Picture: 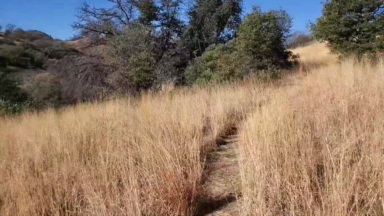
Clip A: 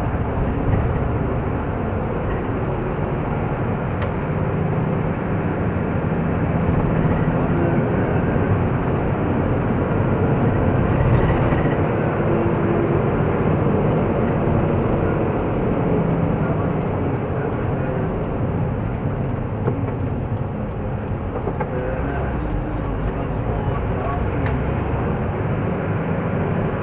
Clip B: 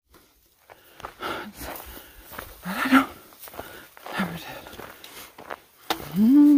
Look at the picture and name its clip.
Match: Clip B